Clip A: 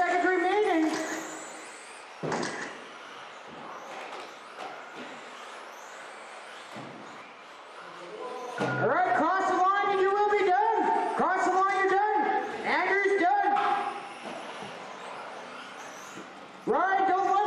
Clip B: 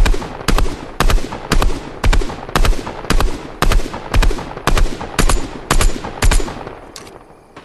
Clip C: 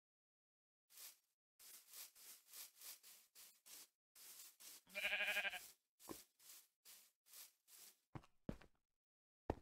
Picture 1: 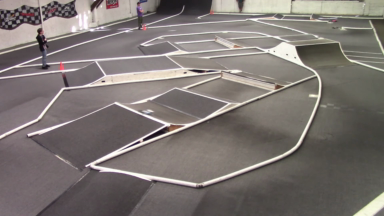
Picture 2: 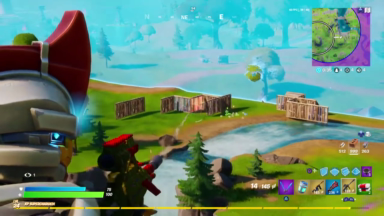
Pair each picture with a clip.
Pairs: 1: A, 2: B